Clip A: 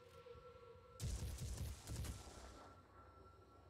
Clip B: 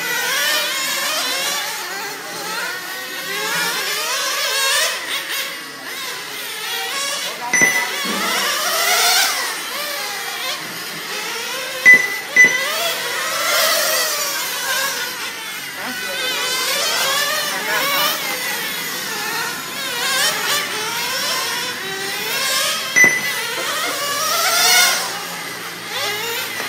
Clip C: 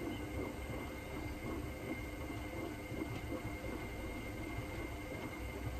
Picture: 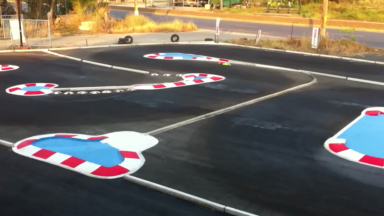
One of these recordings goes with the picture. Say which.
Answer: B